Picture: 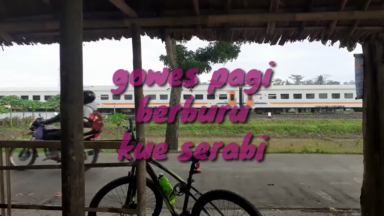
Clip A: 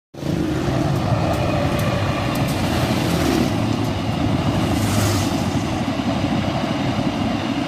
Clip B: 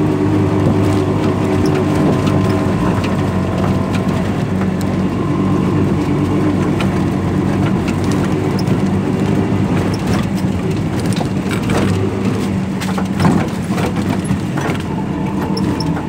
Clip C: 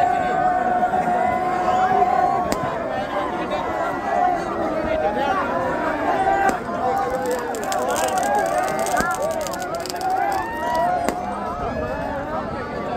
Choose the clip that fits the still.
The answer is A